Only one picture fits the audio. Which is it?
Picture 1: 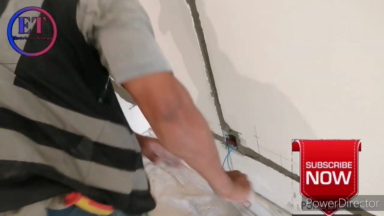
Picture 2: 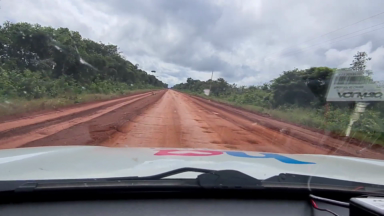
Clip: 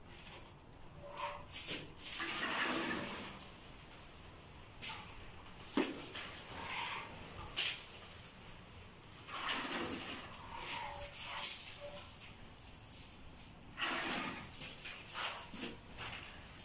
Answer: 1